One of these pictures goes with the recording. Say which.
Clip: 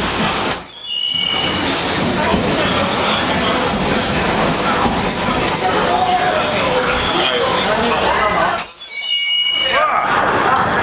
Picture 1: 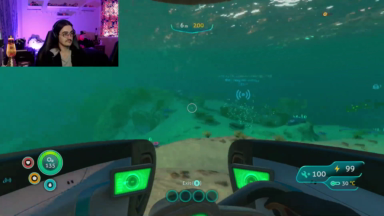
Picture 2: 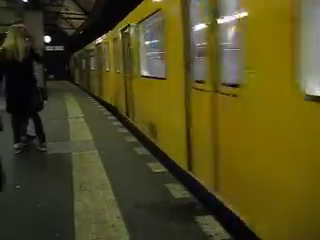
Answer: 2